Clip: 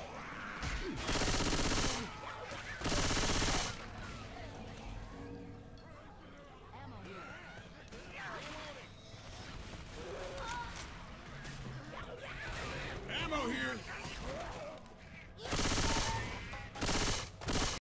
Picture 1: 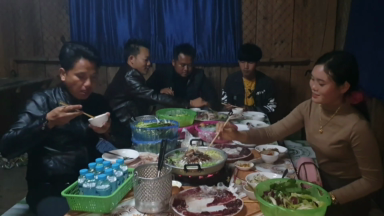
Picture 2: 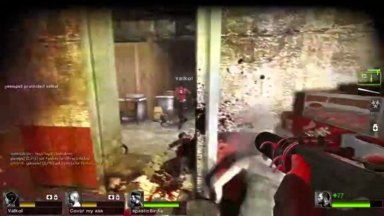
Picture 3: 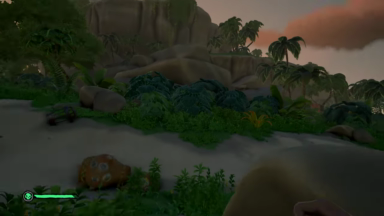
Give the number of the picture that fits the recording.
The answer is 2